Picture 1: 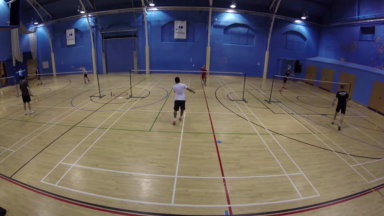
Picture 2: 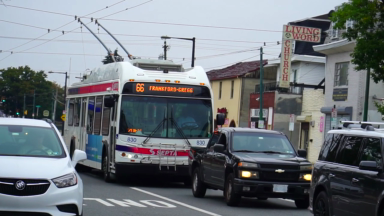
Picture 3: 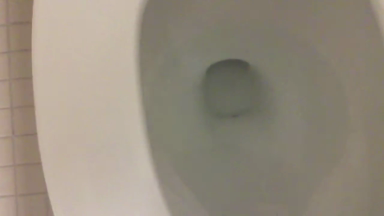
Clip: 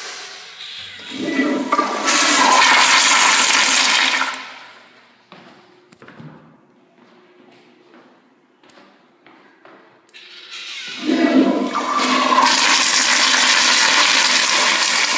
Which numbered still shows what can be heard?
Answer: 3